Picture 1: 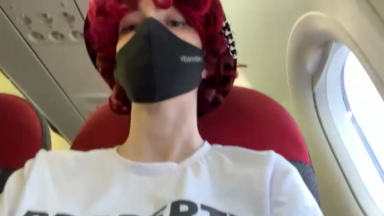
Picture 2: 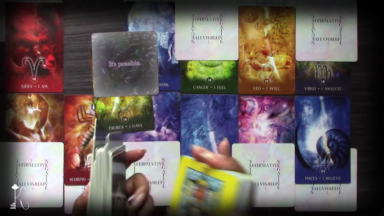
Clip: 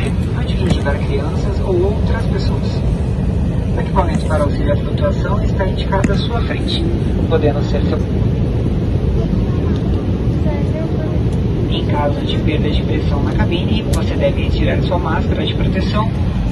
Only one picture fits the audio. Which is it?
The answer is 1